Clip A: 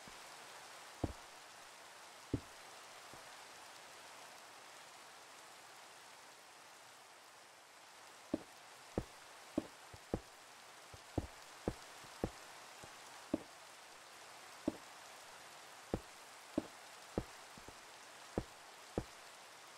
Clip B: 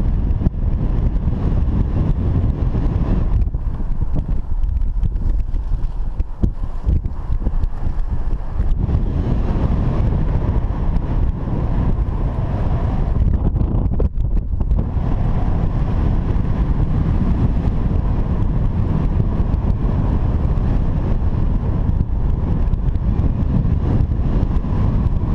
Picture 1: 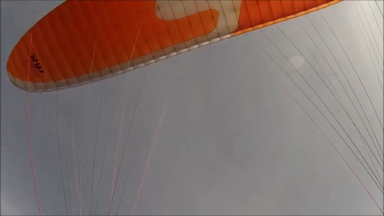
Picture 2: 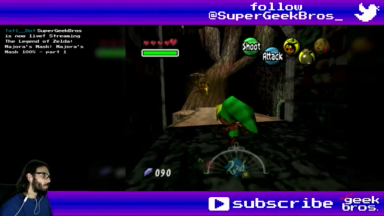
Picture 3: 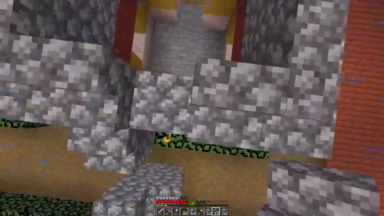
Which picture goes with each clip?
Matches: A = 3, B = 1